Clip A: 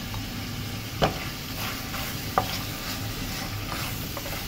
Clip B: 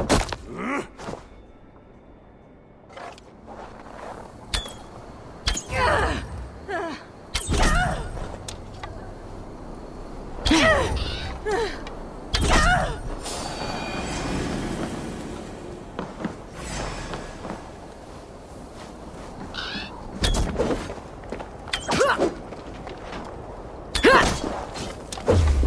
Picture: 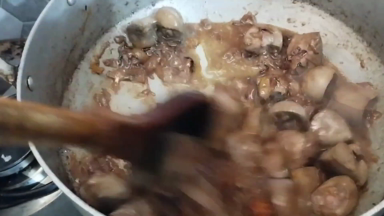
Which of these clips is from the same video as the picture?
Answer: A